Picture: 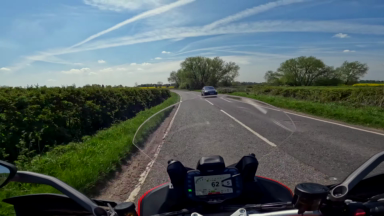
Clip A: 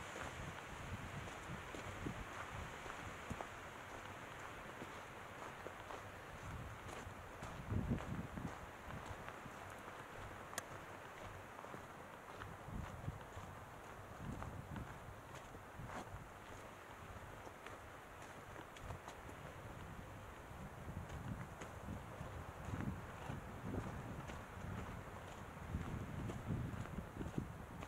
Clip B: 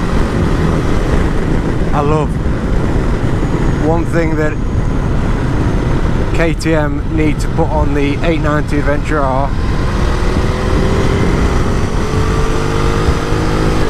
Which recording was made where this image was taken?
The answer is B